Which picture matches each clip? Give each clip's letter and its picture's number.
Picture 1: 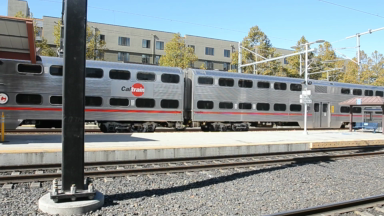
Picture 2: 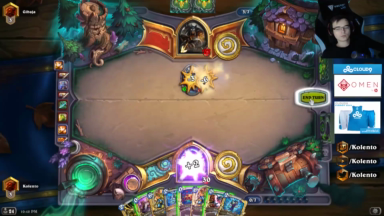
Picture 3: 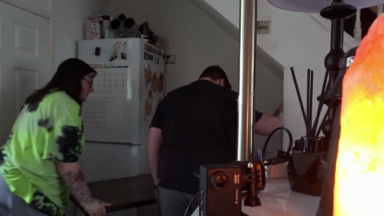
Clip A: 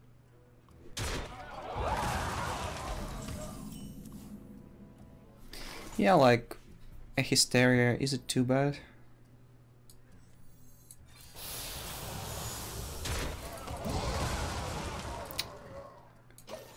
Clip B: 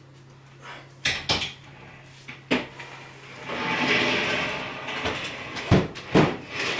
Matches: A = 2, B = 3